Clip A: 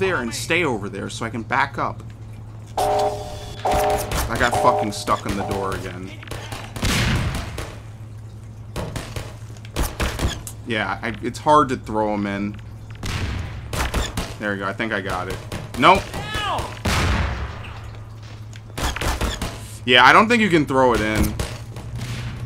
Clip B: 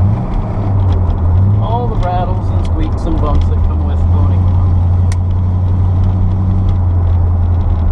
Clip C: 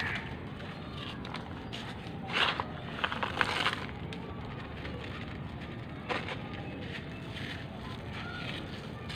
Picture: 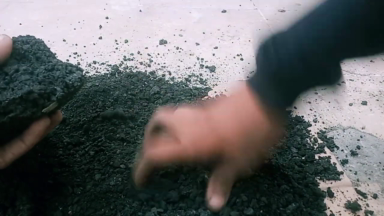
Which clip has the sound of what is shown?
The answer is C